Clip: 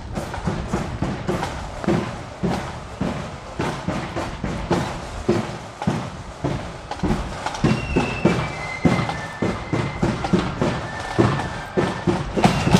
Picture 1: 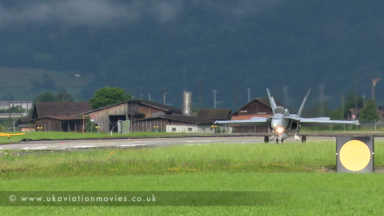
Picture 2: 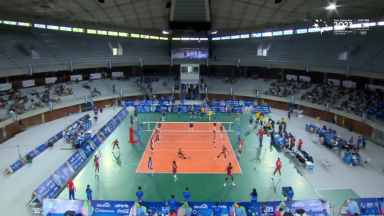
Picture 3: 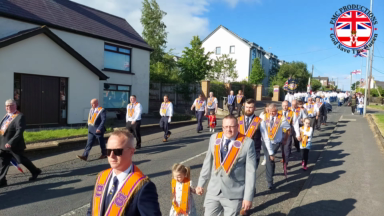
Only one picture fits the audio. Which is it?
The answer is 3